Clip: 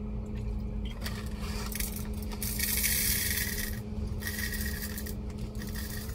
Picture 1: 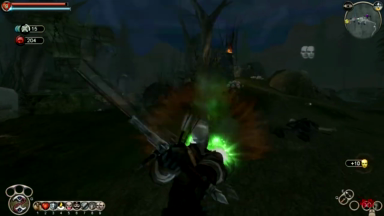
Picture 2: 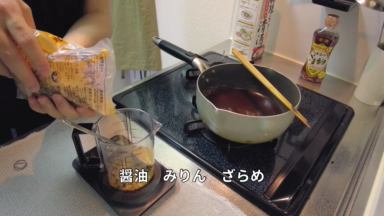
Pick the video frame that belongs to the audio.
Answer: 2